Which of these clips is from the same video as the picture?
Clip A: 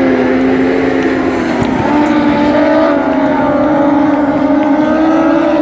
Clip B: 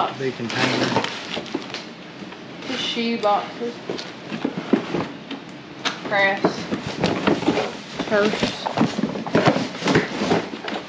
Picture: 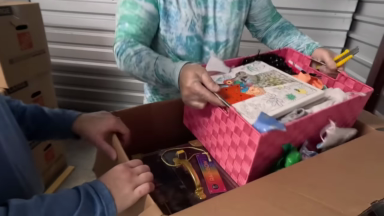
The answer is B